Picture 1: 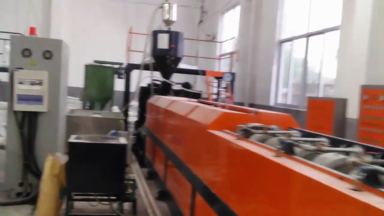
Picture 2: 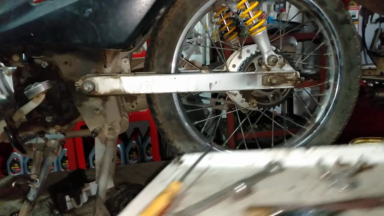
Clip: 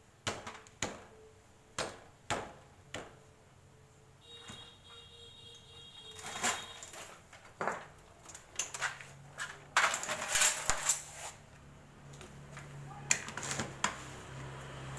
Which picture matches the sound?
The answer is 2